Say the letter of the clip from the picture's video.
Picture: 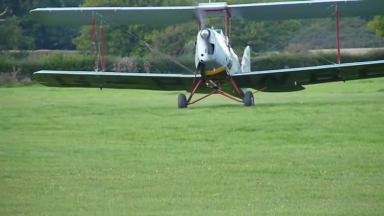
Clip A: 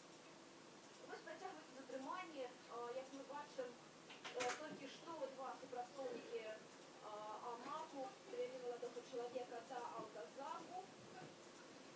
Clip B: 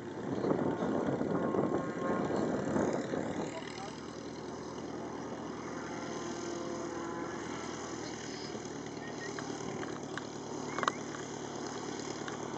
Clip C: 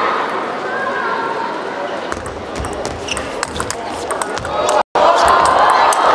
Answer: B